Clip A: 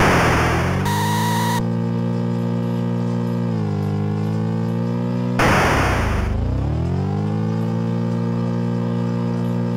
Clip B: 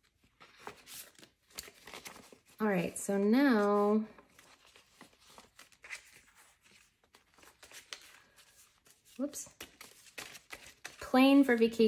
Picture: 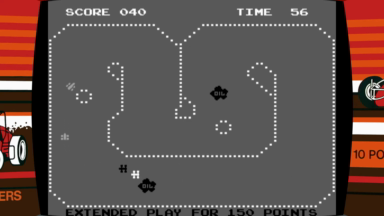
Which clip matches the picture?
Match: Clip A